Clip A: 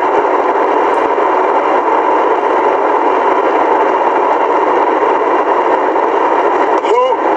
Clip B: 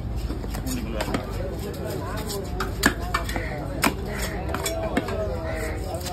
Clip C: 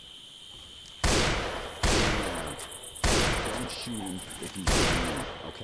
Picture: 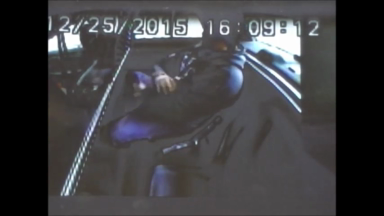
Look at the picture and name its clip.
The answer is A